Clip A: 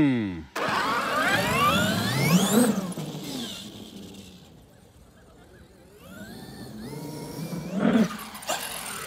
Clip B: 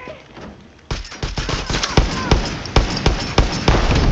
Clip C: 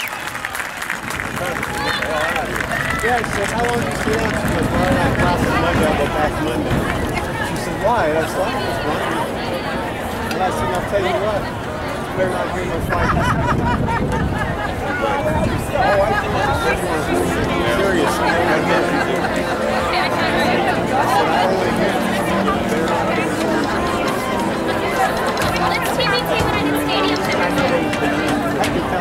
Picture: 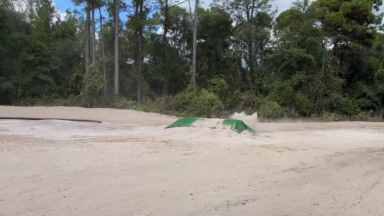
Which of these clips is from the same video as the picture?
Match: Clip A